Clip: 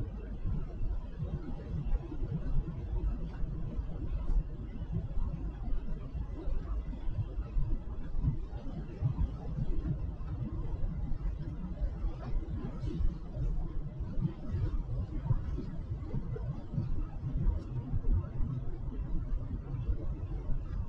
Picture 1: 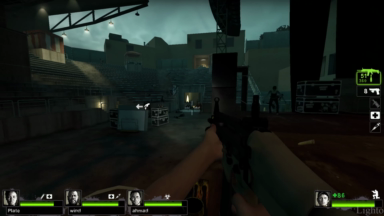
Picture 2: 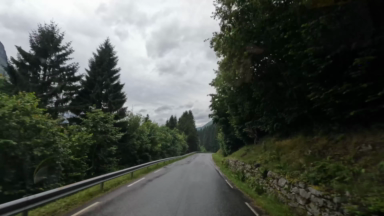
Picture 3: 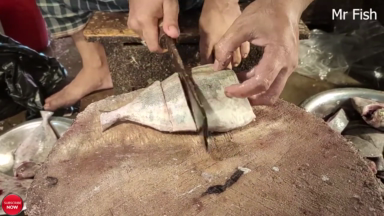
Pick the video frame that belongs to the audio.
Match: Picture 2